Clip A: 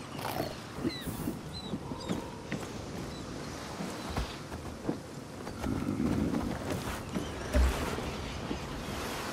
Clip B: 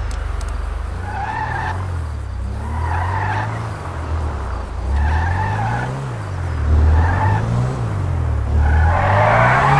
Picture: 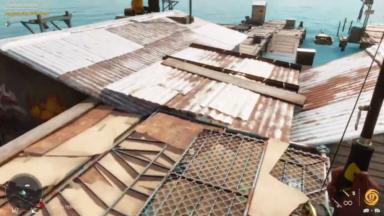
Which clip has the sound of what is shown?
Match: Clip A